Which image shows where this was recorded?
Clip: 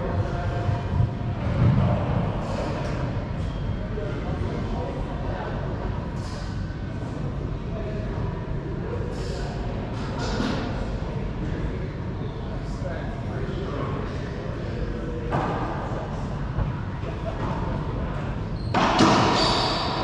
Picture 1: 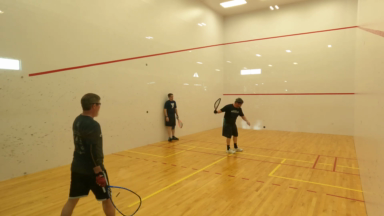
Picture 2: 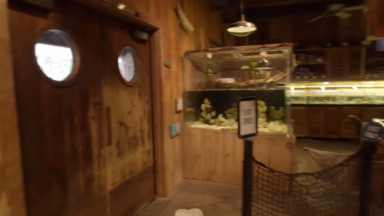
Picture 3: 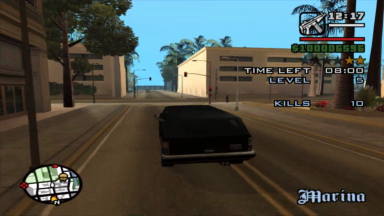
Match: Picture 1